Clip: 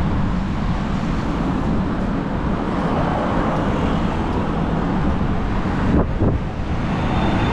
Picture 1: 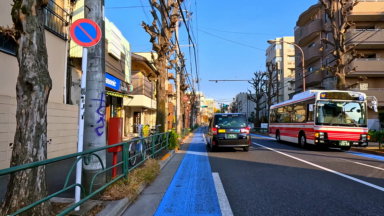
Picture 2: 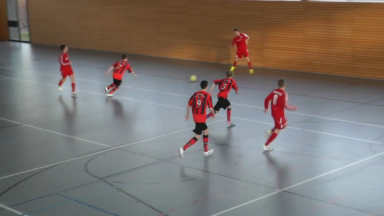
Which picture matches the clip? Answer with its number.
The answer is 1